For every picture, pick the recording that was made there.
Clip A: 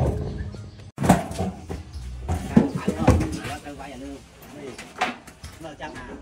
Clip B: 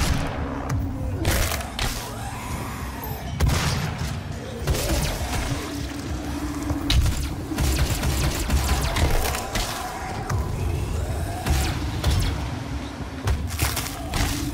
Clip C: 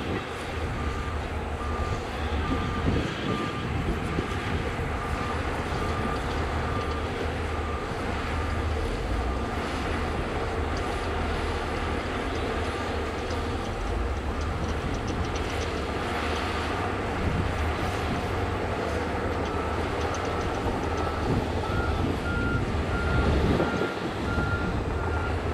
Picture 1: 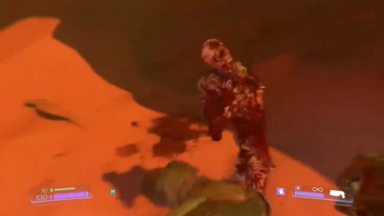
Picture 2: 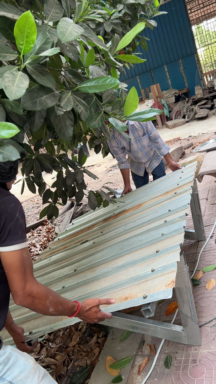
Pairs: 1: B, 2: A